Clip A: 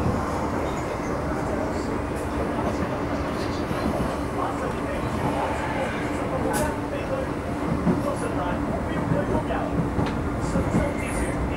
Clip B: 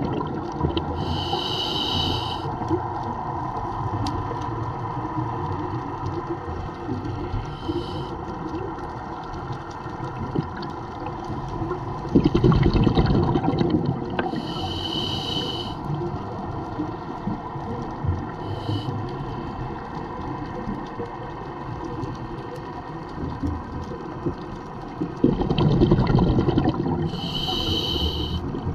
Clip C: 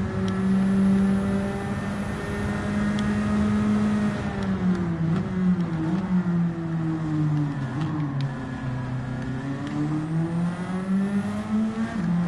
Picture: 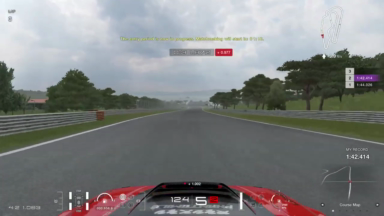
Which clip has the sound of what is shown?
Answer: C